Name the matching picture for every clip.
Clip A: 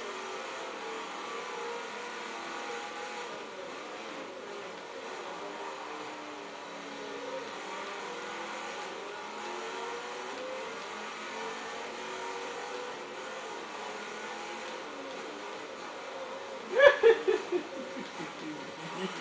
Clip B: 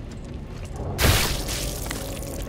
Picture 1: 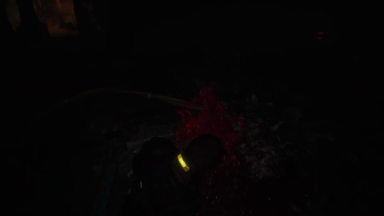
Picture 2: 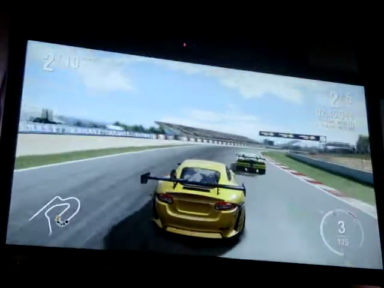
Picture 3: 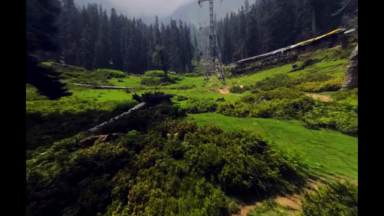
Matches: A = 2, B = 1